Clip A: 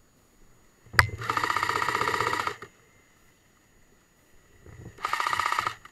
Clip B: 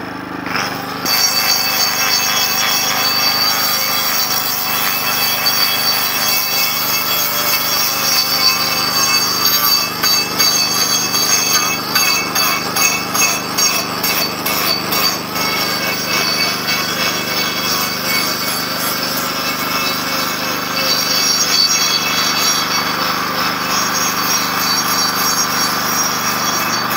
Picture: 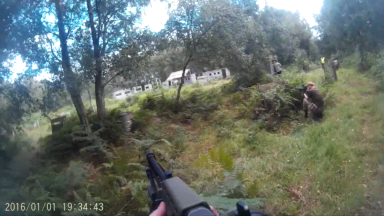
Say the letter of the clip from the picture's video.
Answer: A